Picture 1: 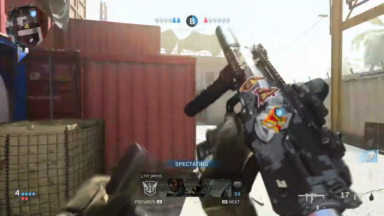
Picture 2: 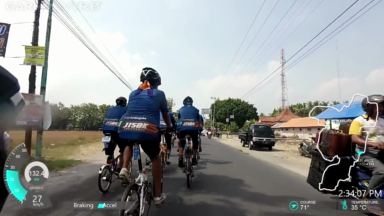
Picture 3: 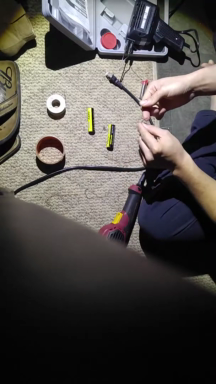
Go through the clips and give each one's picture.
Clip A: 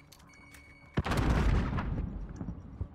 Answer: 1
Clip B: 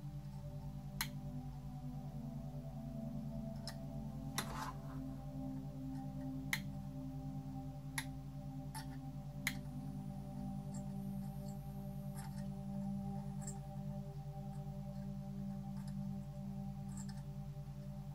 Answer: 3